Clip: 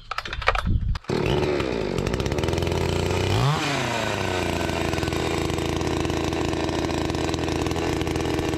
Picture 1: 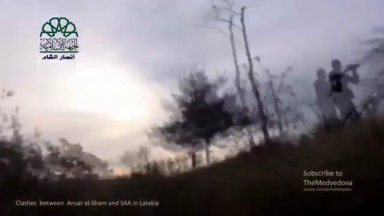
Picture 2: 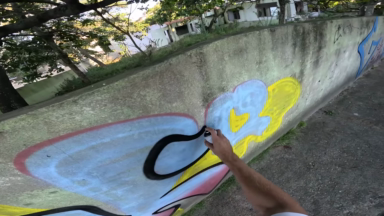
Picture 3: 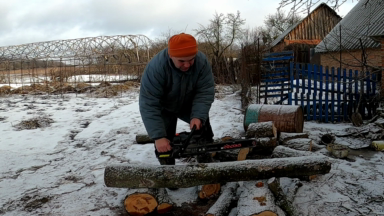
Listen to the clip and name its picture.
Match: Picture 3